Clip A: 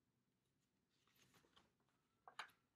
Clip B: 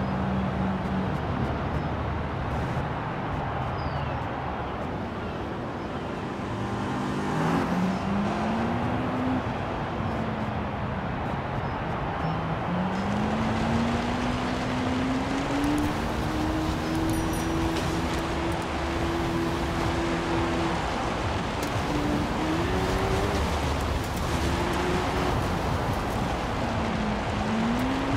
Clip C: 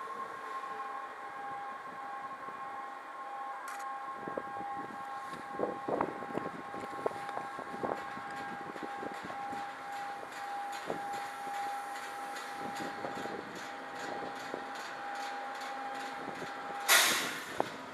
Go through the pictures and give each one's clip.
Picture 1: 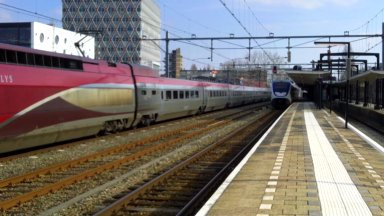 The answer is C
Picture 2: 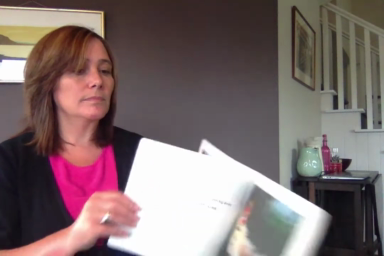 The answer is A